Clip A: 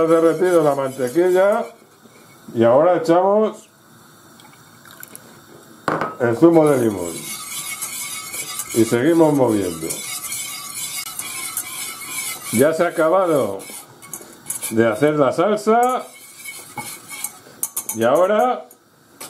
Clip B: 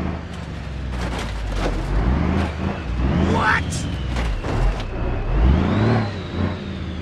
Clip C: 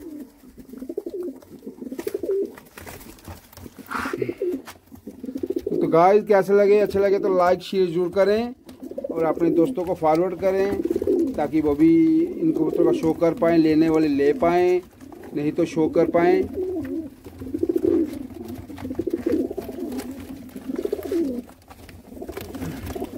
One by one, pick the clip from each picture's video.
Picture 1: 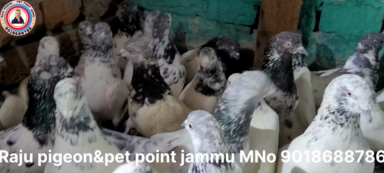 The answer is C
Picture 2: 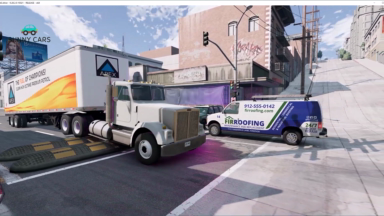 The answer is B